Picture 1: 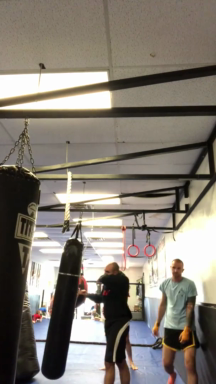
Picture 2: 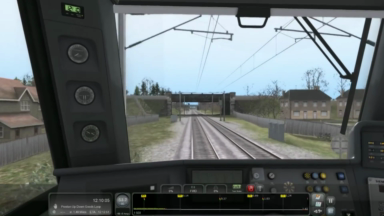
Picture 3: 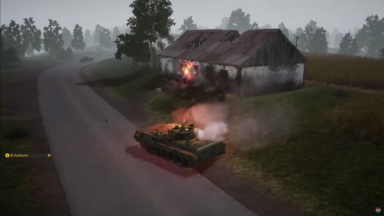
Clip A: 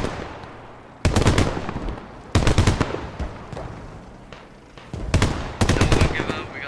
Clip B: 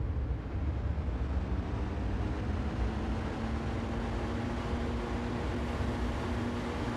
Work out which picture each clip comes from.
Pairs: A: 3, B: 2